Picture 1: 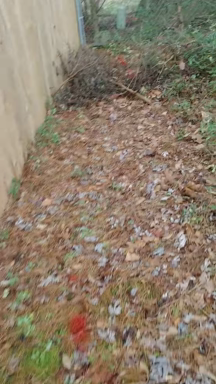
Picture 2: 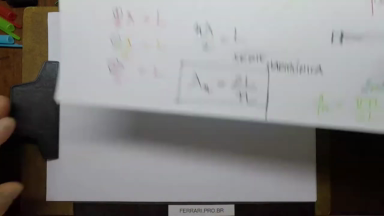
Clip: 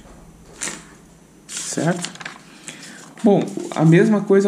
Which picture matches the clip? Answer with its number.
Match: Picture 2